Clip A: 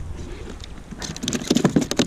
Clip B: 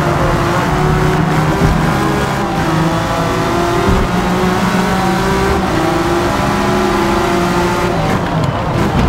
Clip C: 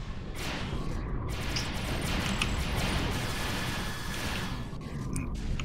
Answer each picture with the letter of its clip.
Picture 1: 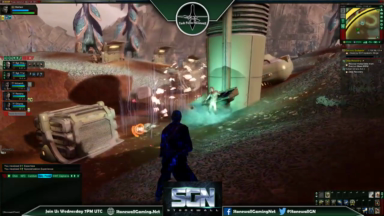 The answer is C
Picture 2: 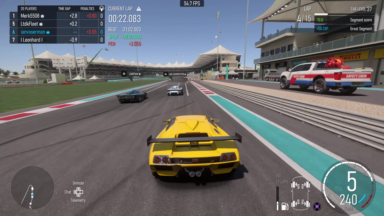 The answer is B